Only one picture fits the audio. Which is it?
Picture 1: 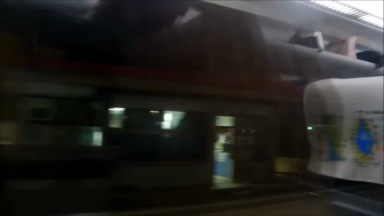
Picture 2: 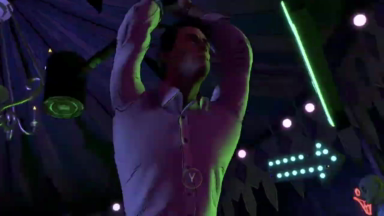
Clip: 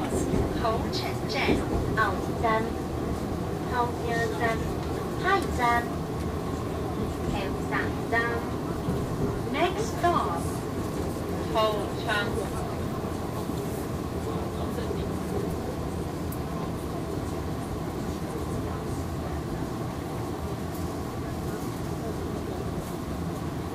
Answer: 1